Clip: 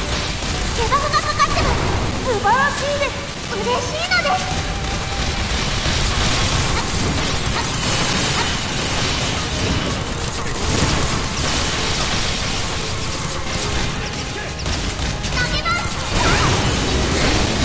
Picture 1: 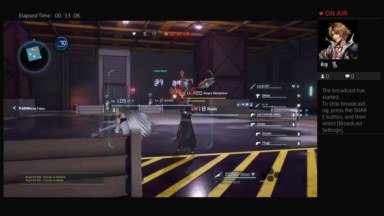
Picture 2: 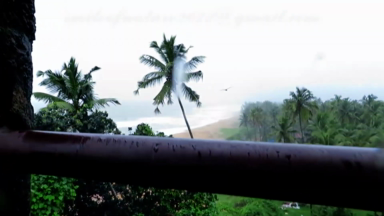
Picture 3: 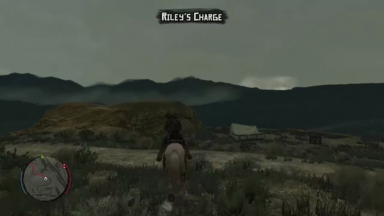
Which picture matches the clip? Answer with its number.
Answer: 1